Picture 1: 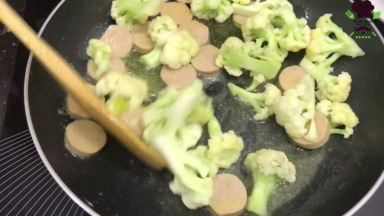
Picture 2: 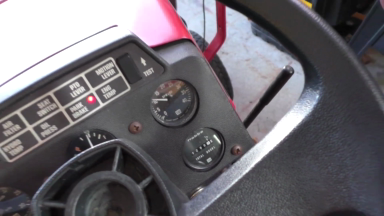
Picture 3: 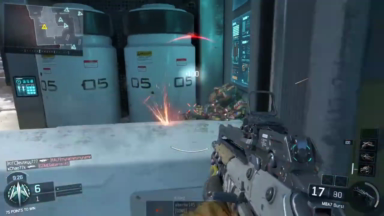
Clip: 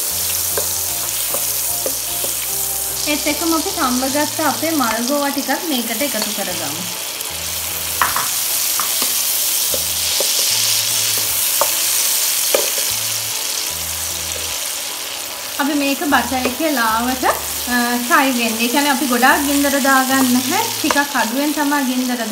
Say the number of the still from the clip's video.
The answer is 1